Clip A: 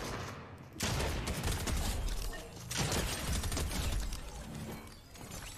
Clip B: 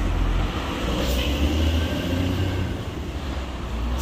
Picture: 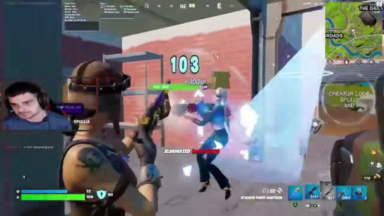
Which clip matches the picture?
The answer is A